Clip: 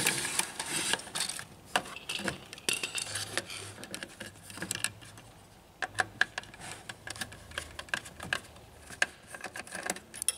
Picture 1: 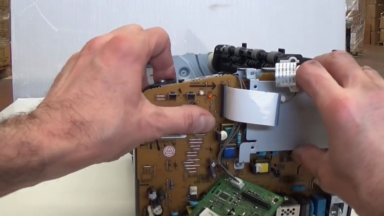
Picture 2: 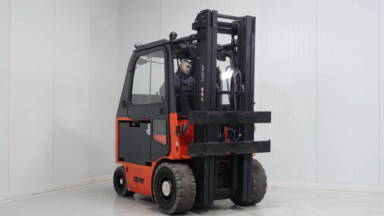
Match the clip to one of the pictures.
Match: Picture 1